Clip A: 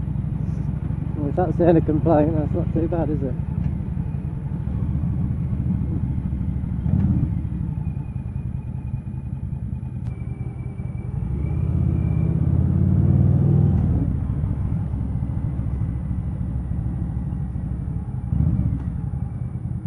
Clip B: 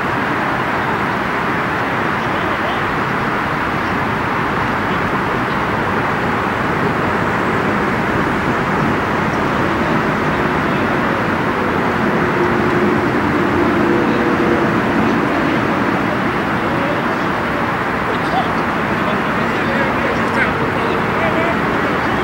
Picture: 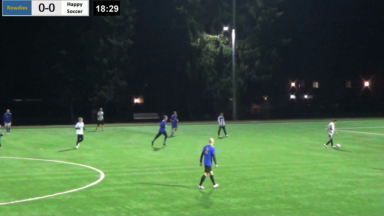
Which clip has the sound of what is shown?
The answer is B